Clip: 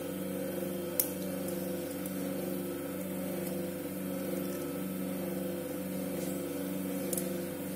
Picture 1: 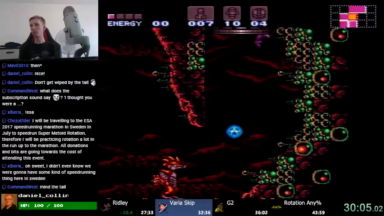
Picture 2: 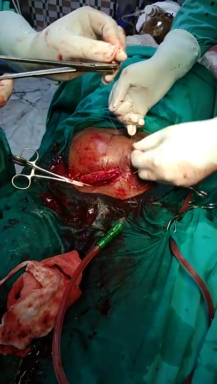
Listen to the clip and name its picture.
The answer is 2